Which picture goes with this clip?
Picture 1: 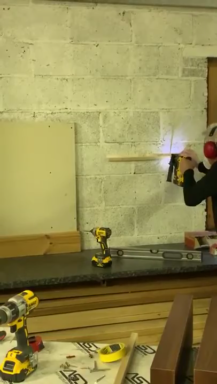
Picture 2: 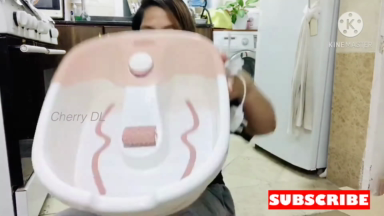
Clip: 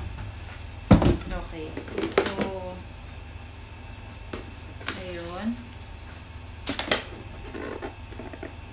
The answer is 2